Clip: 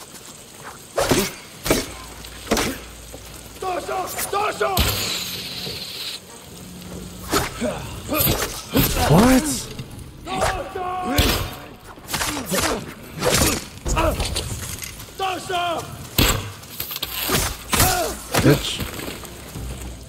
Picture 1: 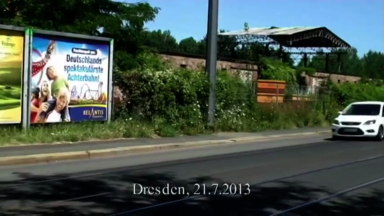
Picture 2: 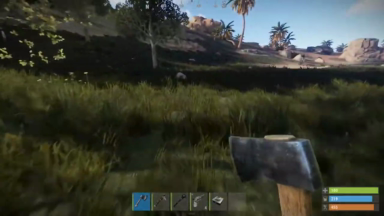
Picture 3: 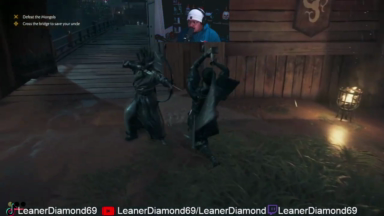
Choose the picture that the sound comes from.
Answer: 3